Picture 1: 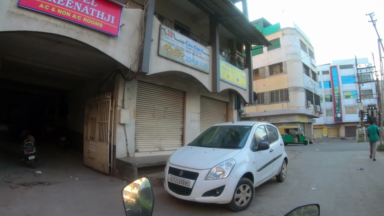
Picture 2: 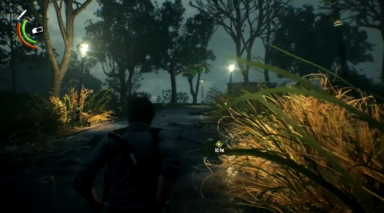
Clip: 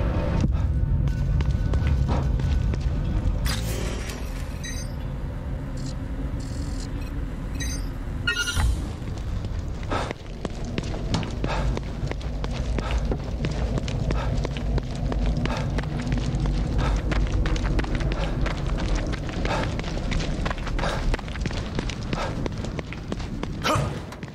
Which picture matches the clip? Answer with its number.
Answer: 2